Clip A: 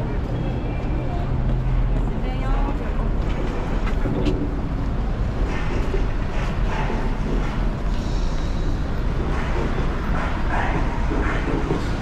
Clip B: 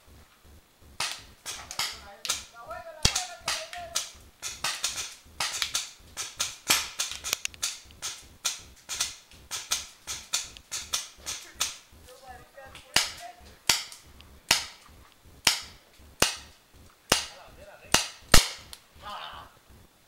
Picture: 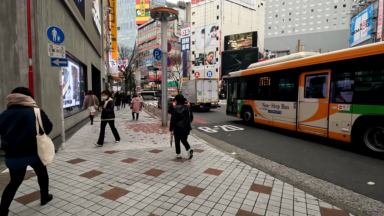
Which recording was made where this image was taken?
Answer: A